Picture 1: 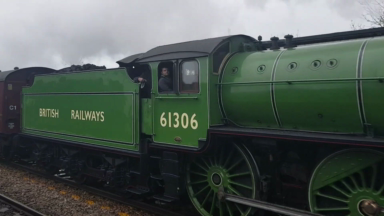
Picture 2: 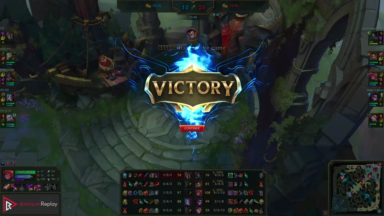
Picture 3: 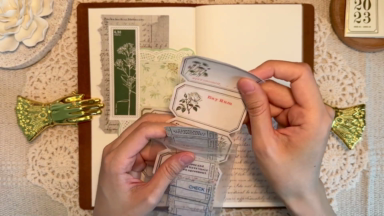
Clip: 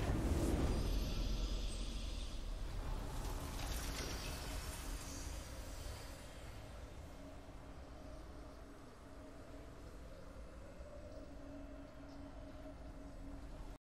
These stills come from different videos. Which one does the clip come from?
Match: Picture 2